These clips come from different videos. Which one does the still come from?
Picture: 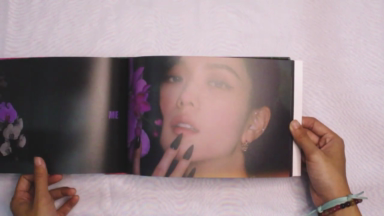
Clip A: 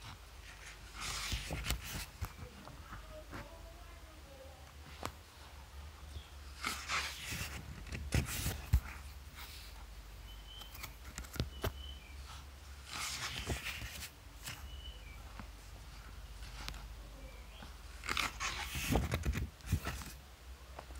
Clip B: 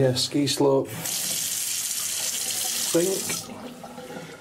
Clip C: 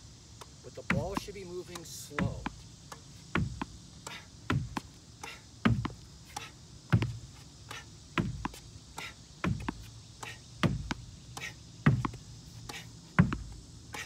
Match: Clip A